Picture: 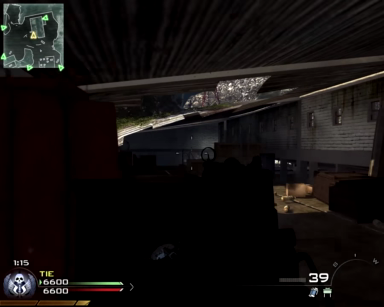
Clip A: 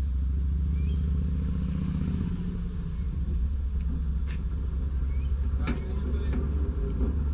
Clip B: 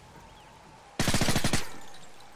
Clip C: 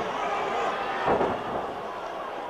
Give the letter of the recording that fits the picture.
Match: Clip B